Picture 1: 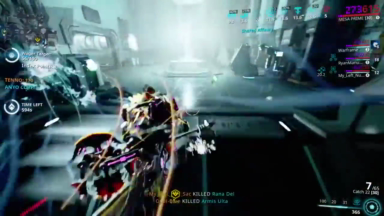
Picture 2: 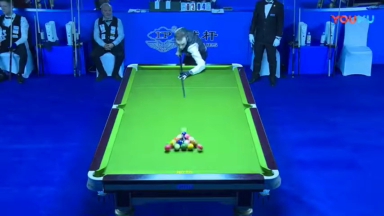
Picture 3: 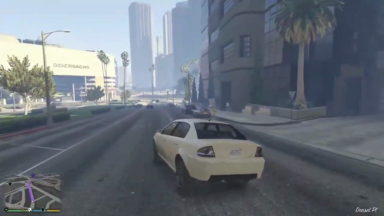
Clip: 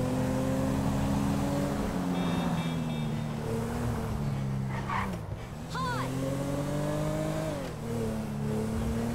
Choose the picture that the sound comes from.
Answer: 3